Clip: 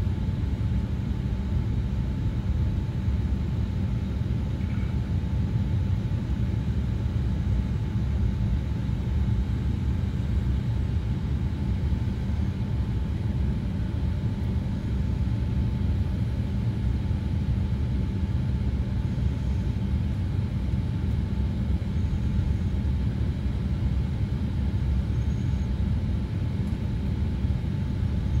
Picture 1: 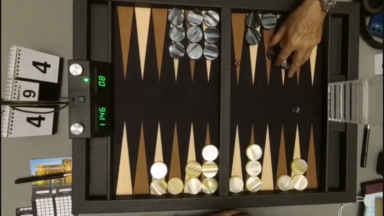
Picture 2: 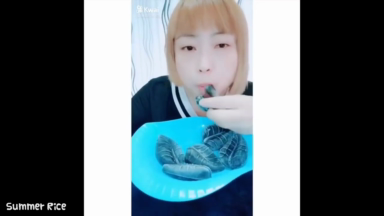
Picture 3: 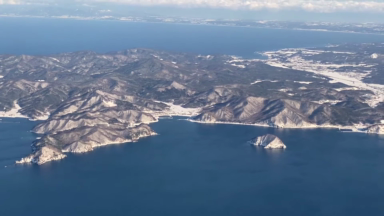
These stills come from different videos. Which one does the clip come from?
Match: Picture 3